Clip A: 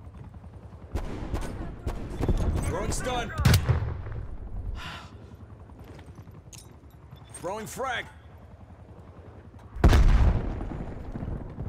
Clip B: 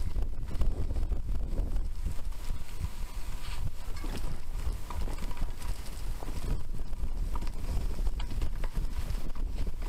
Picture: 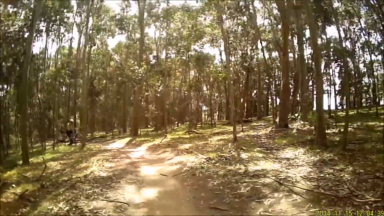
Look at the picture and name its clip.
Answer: B